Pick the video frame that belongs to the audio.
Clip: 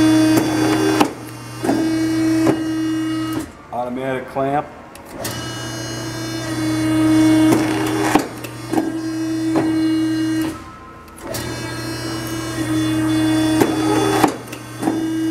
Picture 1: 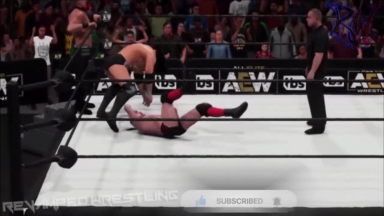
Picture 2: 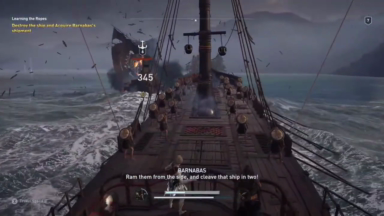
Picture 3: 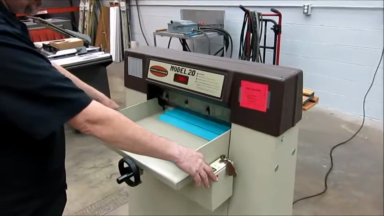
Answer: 3